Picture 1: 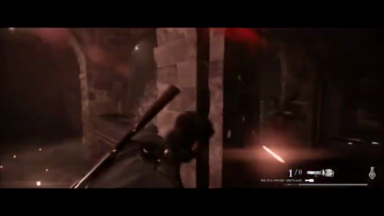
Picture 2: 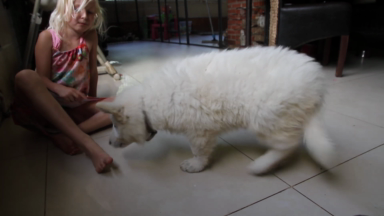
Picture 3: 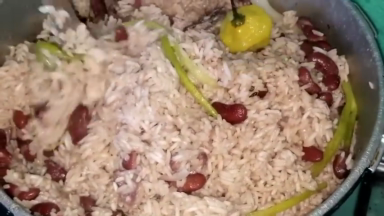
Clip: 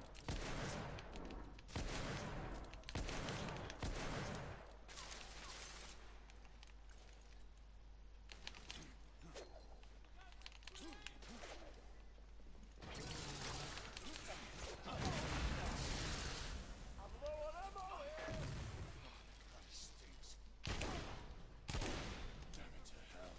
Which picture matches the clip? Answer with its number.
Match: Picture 1